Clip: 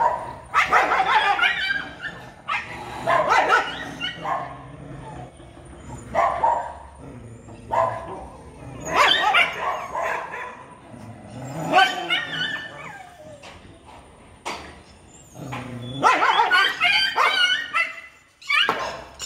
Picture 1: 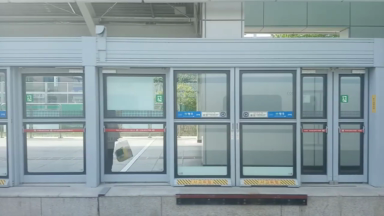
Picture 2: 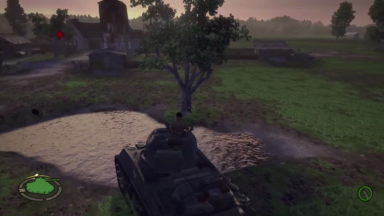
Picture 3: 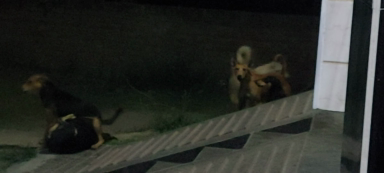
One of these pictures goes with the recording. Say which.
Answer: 3